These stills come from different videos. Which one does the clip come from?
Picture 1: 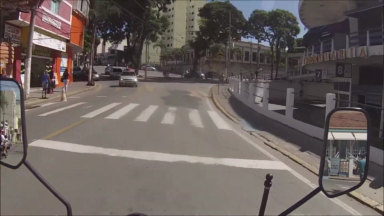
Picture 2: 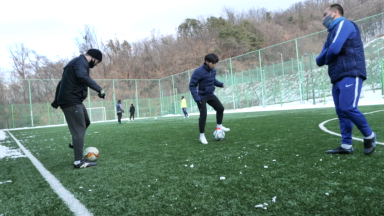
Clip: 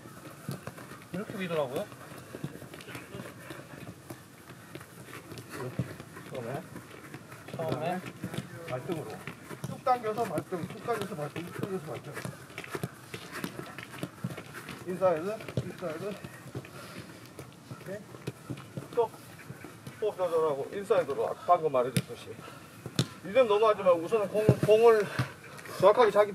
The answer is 2